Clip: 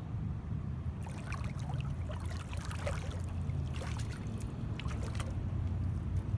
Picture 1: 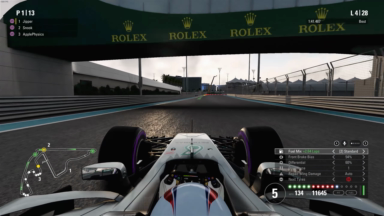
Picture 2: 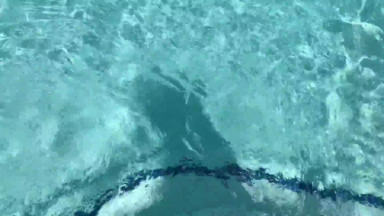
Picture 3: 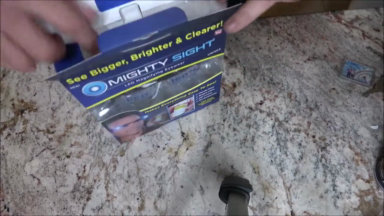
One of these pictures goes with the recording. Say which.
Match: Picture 2